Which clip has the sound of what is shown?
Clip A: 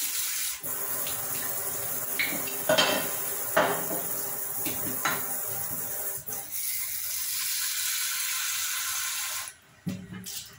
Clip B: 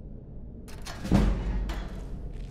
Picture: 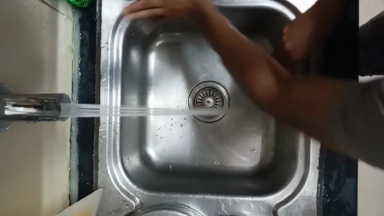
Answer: A